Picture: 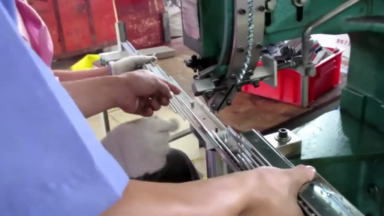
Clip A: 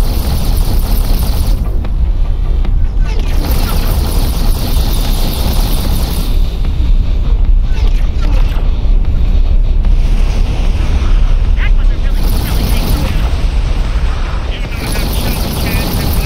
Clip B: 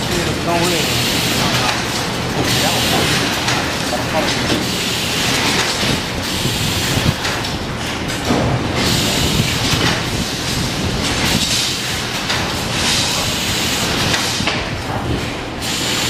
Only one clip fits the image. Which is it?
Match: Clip B